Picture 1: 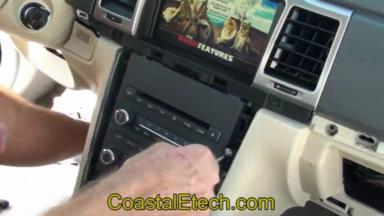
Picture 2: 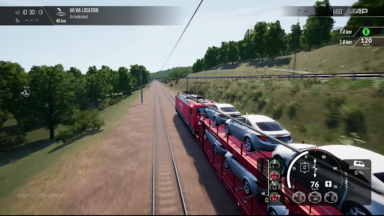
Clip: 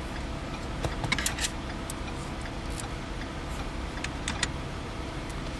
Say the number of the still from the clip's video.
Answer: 1